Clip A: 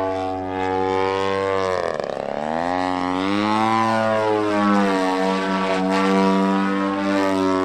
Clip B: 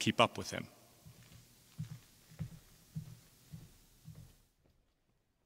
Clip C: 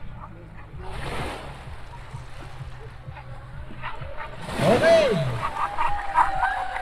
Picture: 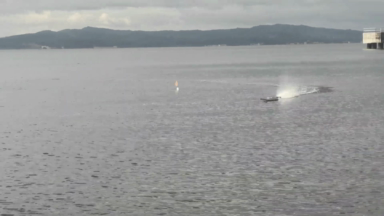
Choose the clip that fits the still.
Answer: C